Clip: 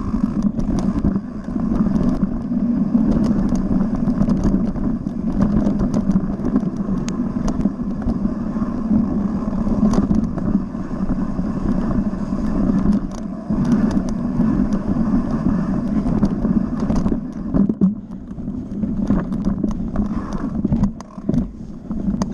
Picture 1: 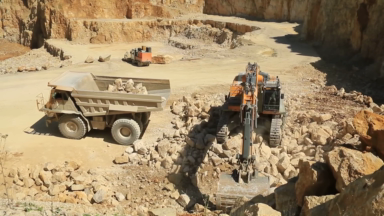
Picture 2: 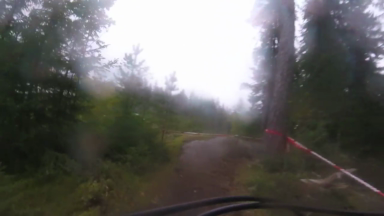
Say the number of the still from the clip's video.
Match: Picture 2